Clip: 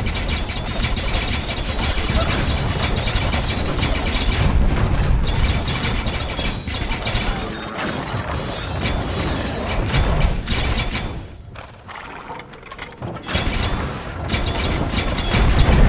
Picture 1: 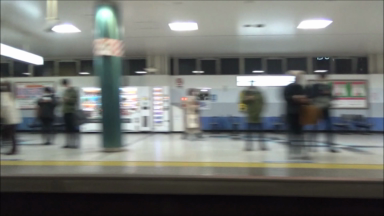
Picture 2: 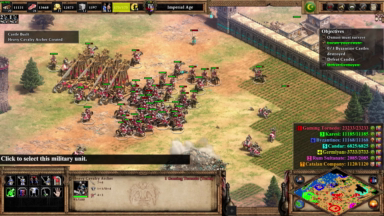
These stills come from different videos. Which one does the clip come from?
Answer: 2